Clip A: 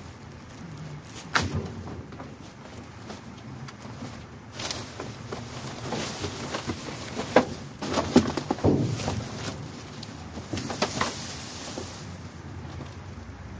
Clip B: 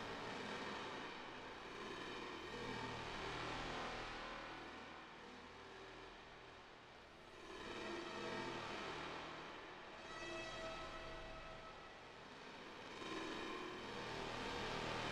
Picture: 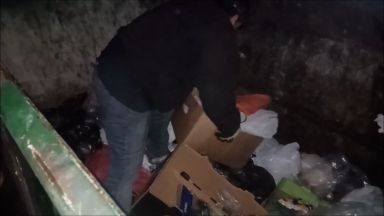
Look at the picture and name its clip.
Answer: A